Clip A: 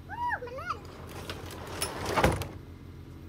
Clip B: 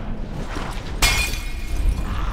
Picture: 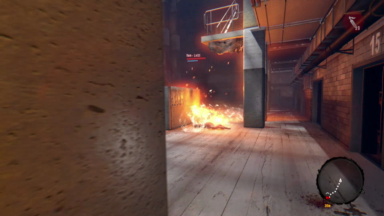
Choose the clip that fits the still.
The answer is B